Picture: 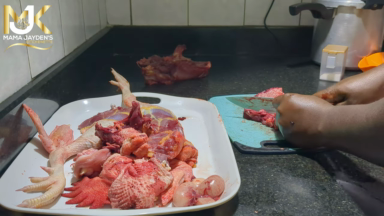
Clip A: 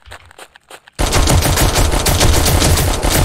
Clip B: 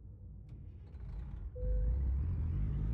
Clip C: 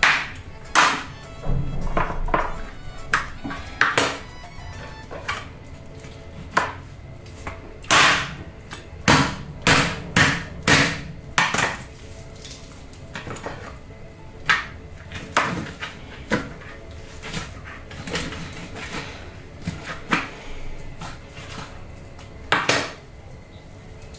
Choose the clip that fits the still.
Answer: C